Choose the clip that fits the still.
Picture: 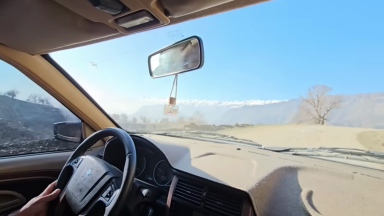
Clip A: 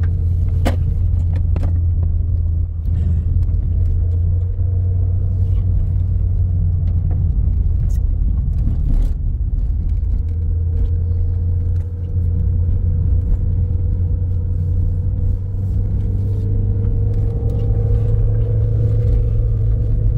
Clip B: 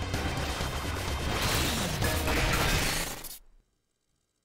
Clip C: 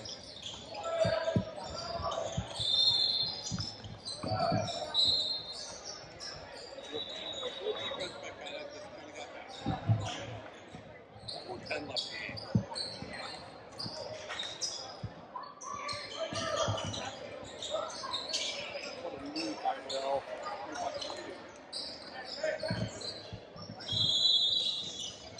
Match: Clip A